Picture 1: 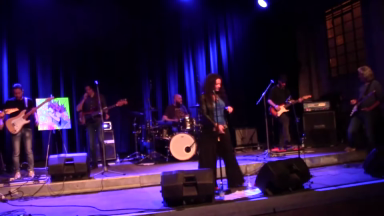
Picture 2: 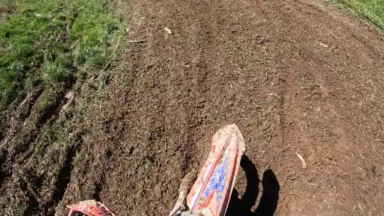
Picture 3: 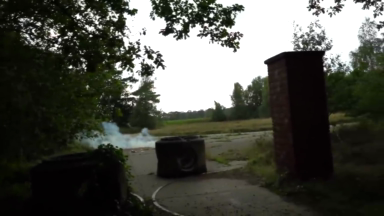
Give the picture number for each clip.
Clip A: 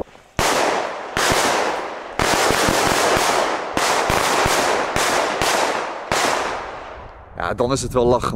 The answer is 3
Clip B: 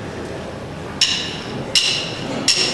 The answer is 1